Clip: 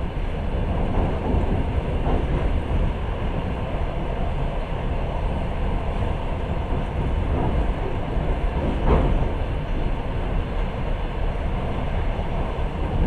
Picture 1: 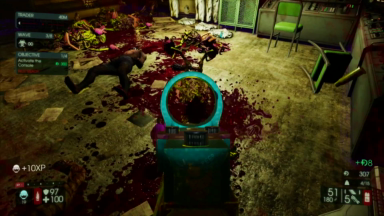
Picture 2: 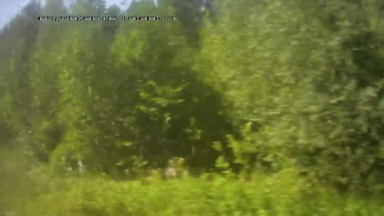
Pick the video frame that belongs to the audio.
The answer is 2